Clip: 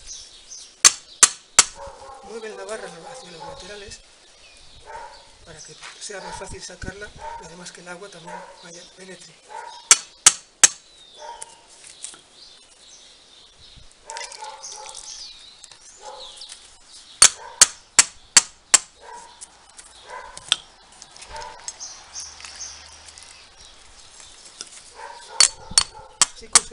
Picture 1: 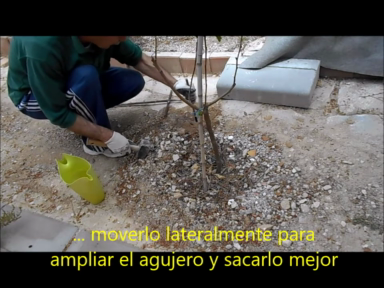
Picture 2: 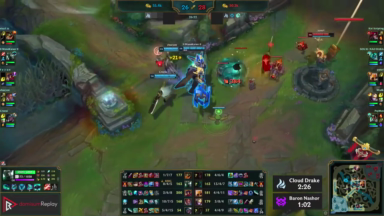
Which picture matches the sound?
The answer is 1